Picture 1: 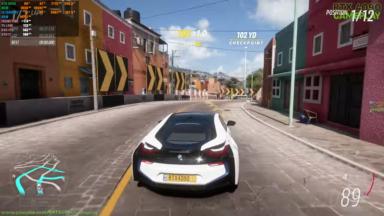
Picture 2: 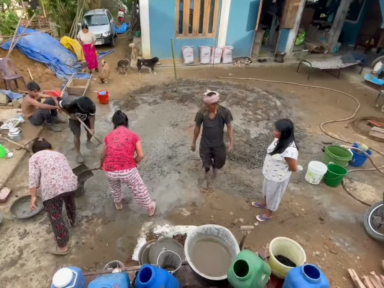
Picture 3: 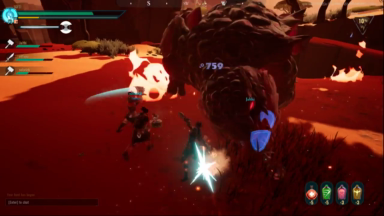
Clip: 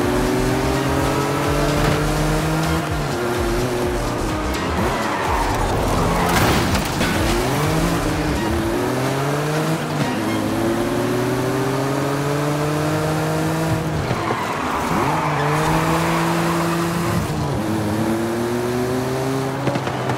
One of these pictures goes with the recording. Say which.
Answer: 1